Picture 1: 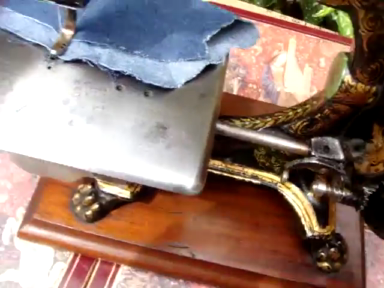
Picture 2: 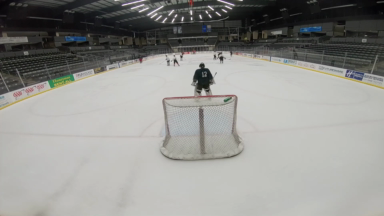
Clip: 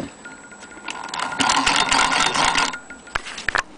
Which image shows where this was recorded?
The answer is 1